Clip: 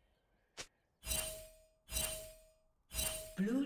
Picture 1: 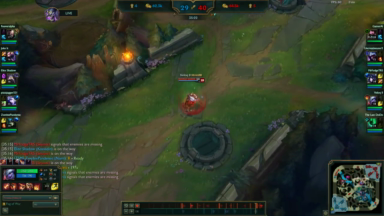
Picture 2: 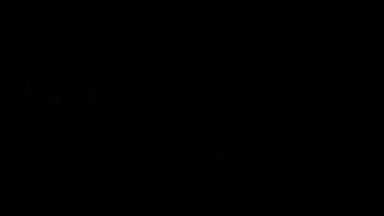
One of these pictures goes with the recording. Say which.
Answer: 1